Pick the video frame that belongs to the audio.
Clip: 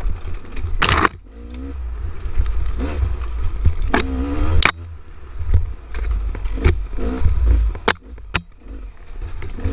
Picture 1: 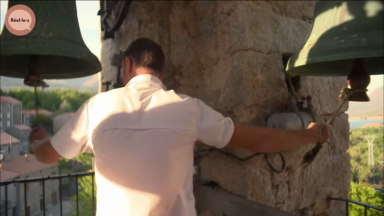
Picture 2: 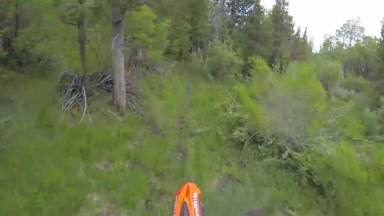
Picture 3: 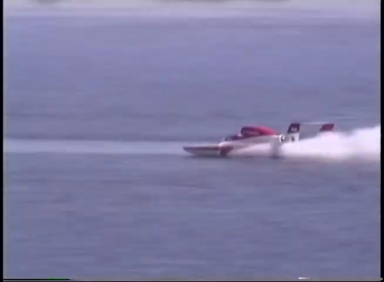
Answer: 2